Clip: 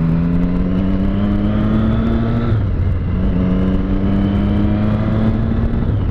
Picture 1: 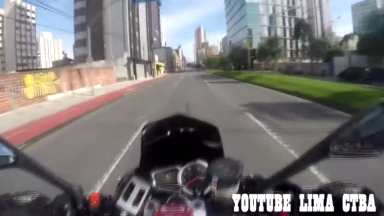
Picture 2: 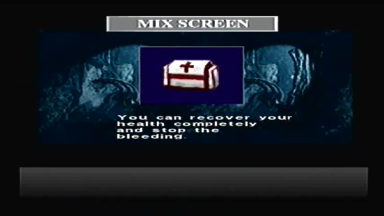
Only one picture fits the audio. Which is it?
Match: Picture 1